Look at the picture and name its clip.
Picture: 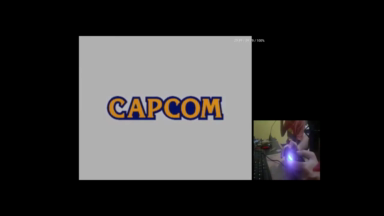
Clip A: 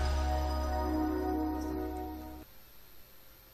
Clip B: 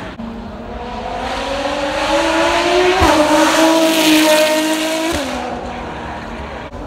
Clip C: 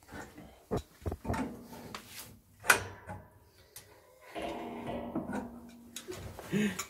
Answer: A